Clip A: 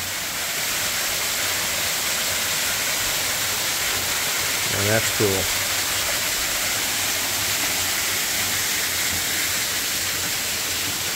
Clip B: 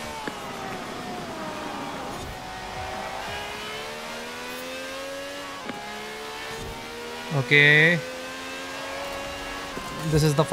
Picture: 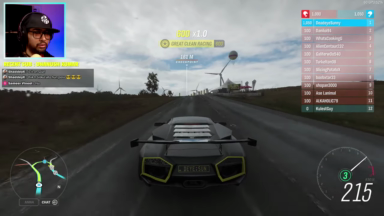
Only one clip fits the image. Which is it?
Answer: B